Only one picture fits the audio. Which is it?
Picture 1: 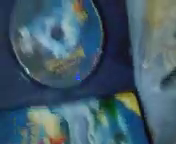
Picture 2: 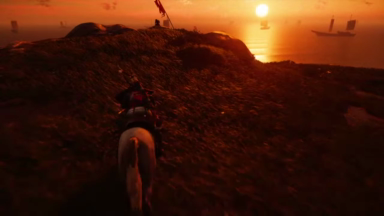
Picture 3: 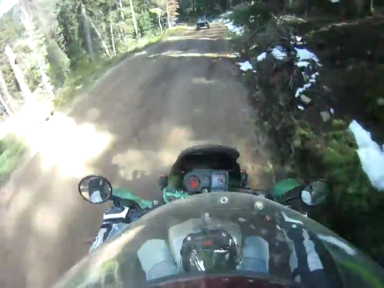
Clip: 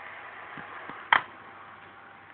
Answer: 1